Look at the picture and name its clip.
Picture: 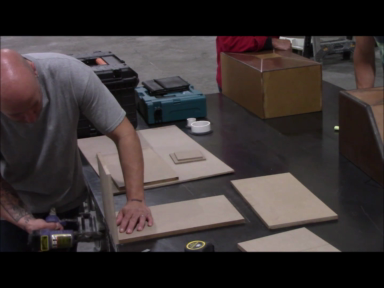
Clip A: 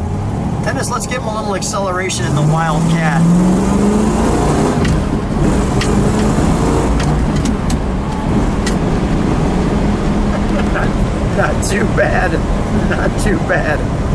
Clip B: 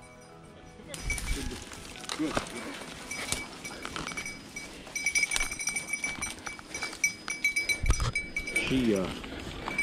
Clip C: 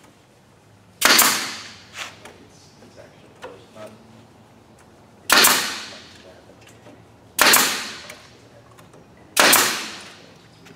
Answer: C